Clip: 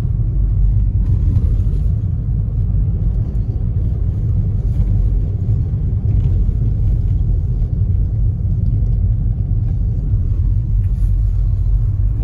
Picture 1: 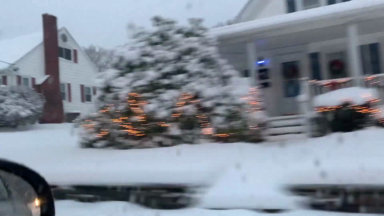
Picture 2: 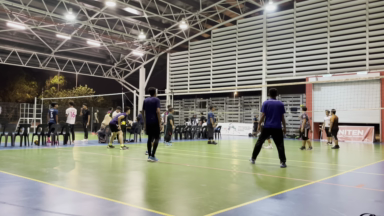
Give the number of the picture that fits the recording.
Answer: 1